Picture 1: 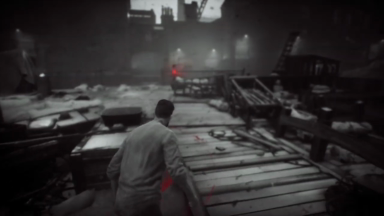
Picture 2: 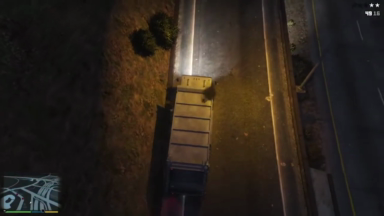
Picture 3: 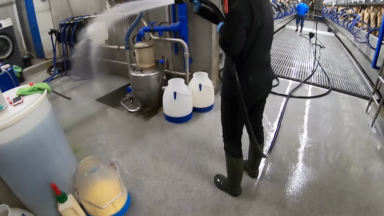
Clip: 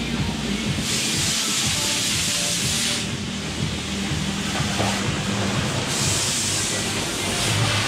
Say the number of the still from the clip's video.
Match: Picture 3